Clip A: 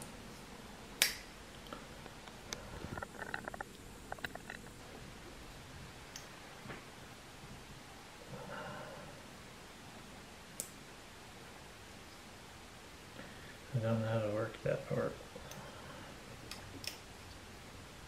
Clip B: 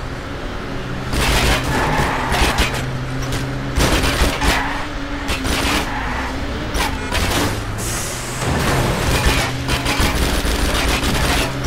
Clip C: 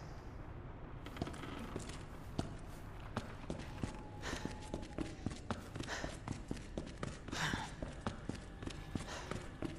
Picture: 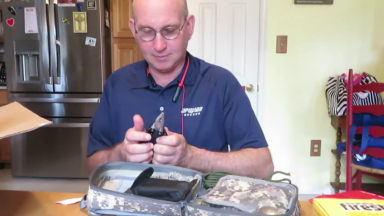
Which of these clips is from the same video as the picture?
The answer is A